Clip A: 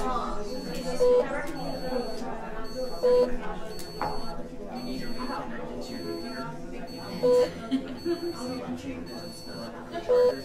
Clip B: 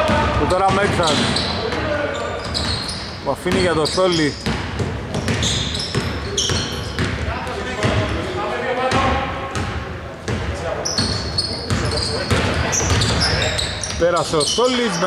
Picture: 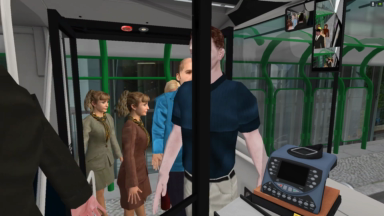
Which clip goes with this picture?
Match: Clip A